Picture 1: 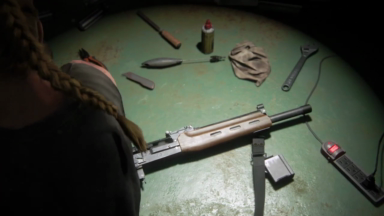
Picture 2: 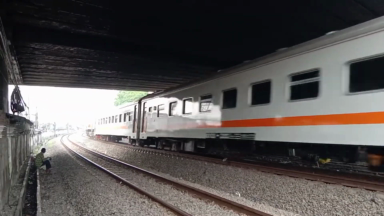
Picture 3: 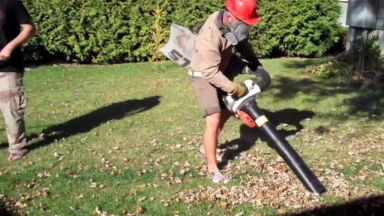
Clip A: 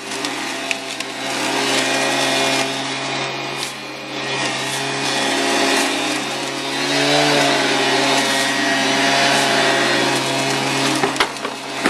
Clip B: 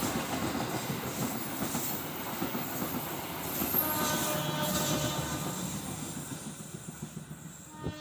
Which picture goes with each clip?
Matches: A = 3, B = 2